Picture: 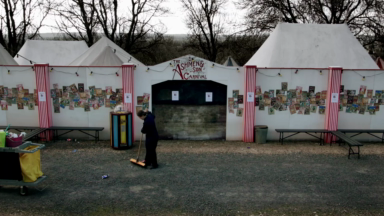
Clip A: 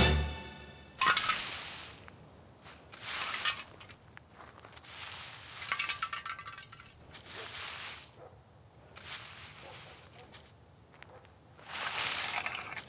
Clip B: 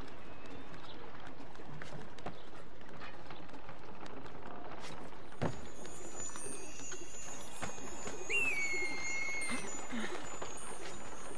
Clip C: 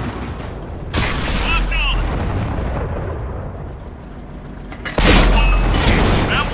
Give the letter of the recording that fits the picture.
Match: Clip A